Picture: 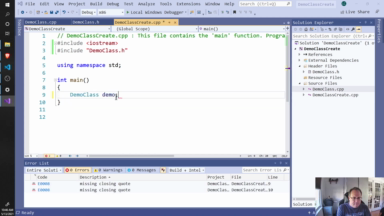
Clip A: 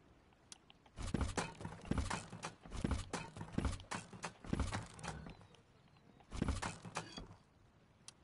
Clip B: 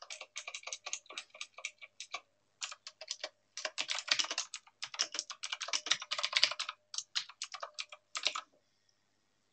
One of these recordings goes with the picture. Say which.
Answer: B